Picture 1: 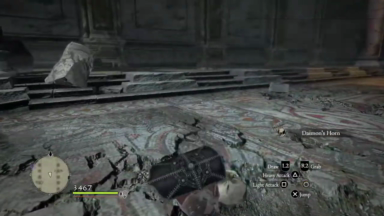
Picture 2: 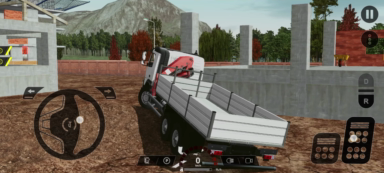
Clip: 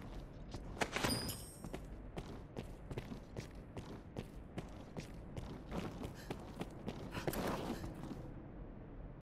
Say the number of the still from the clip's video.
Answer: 1